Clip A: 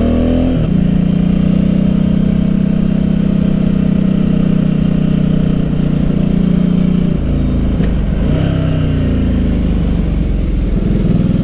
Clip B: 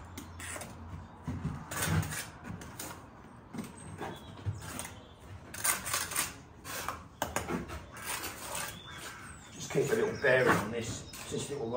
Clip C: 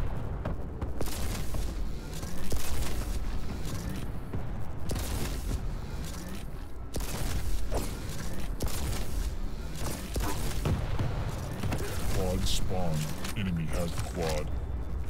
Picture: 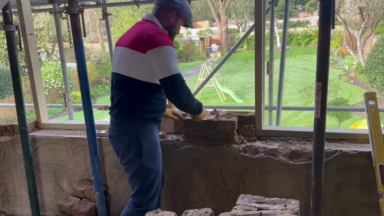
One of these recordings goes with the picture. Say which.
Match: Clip B